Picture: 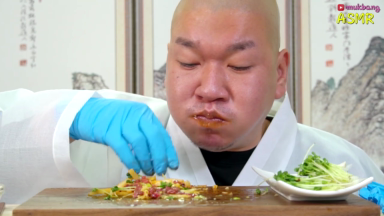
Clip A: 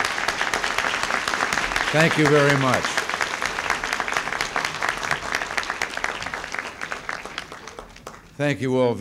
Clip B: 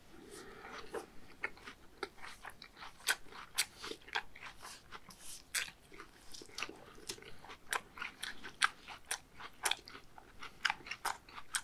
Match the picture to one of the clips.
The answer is B